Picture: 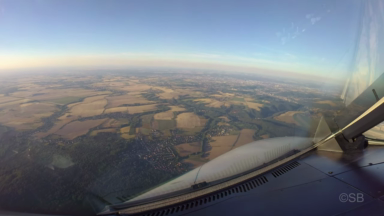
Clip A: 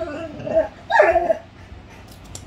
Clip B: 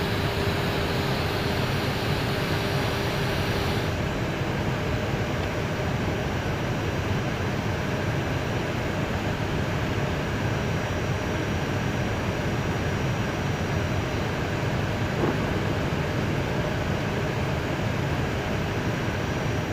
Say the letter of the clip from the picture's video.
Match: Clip B